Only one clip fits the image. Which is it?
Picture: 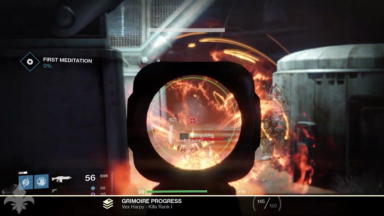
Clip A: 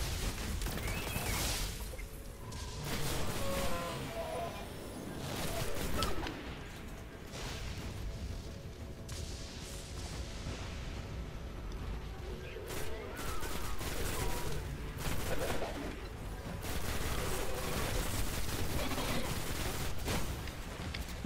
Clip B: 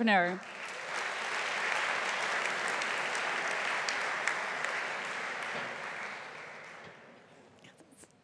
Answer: A